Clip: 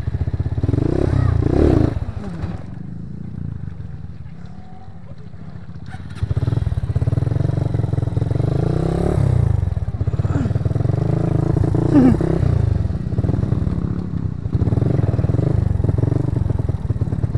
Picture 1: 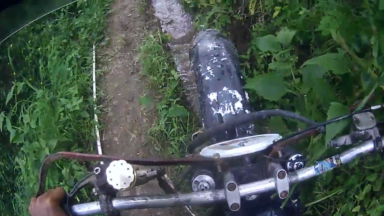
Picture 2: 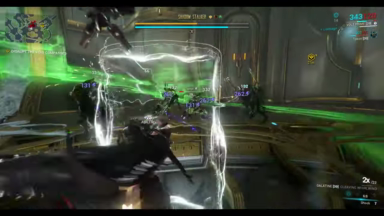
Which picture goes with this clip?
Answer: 1